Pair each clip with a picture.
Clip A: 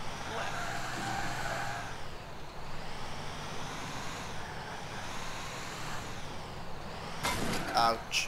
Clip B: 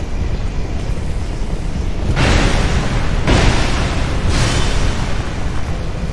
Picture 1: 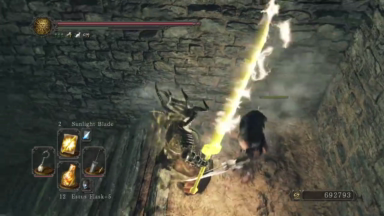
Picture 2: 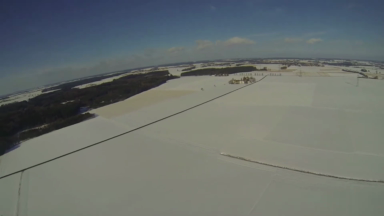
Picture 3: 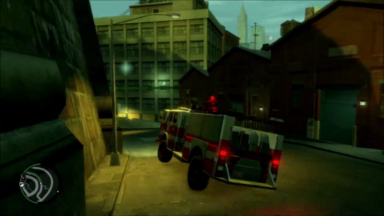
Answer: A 3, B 1